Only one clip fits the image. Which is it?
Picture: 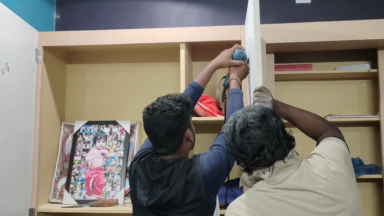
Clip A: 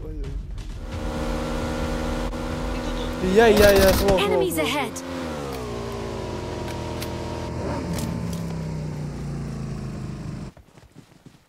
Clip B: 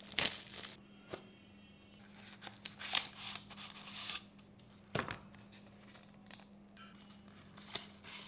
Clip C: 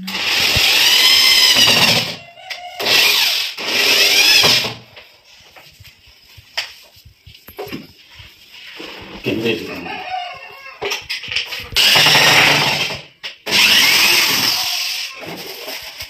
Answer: C